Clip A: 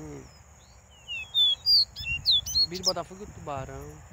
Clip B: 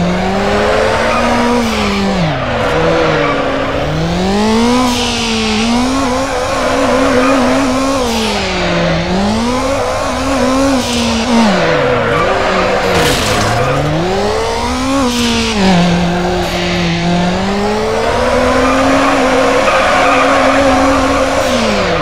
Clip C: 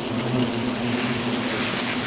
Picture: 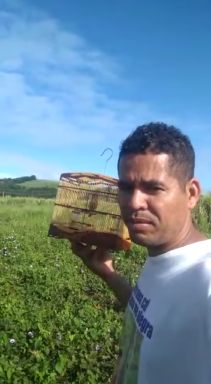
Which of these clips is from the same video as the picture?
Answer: A